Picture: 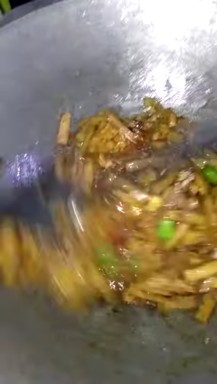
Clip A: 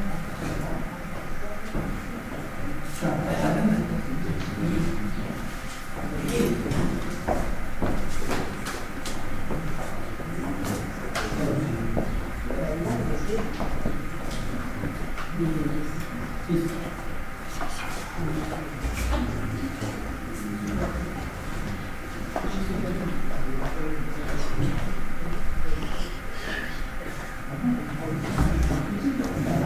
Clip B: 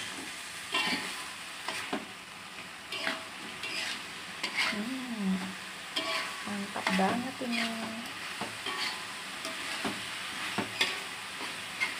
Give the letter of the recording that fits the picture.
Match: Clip B